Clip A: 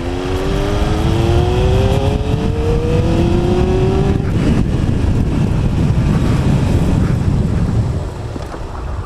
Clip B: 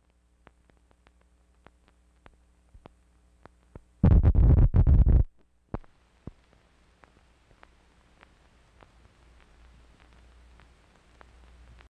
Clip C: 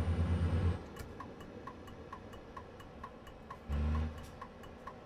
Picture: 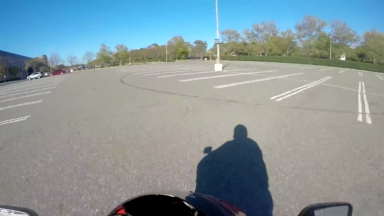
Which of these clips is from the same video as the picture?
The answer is A